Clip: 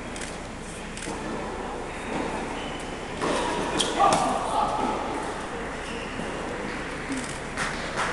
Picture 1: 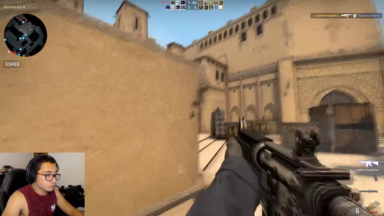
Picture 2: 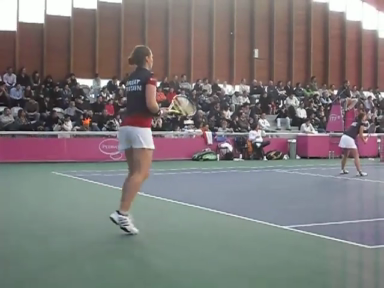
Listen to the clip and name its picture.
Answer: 2